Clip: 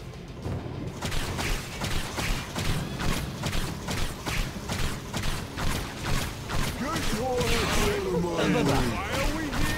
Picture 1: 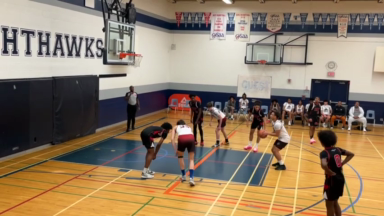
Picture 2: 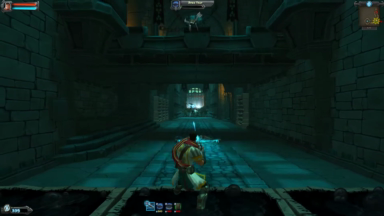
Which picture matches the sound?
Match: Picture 2